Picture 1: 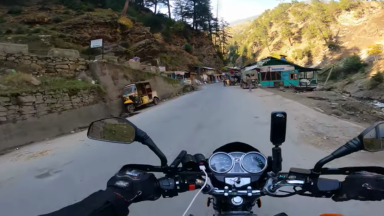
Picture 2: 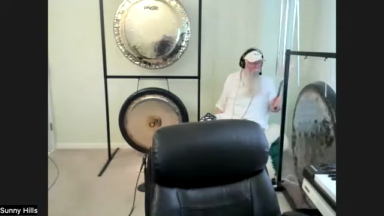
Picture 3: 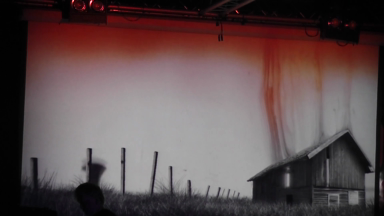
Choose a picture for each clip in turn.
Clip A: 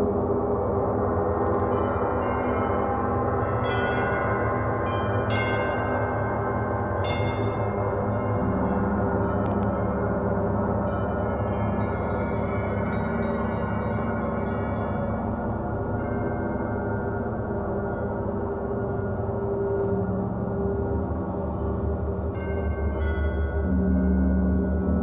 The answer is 2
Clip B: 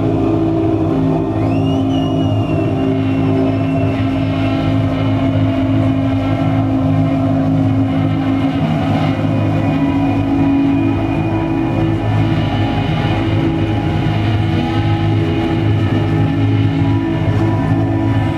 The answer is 3